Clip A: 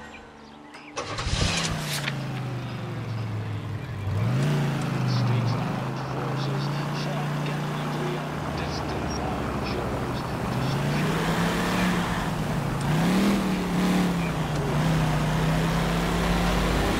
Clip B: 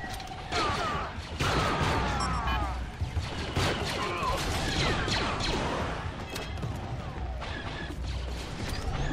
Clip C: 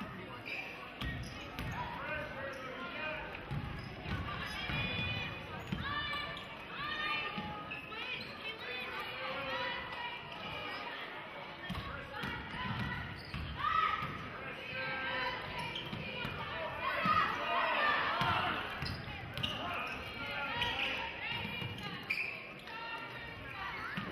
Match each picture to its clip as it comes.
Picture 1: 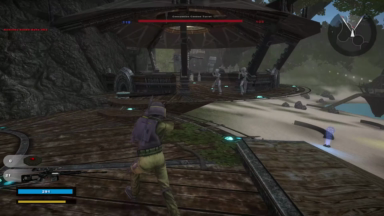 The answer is B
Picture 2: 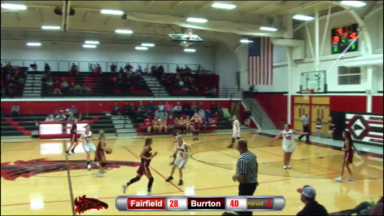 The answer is C